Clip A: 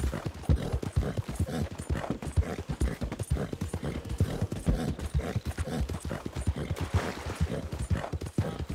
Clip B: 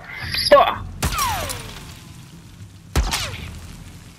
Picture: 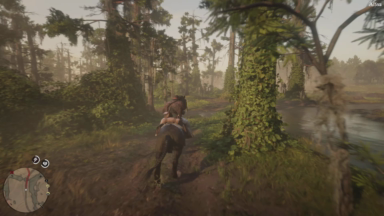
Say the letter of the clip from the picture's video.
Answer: A